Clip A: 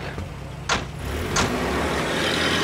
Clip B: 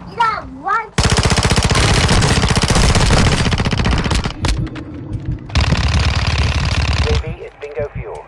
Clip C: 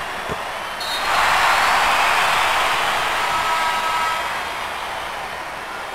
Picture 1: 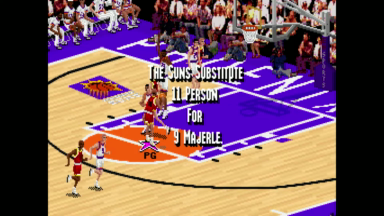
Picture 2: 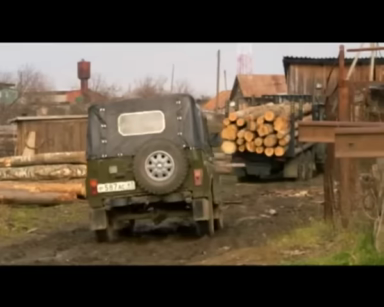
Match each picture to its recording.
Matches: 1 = C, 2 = A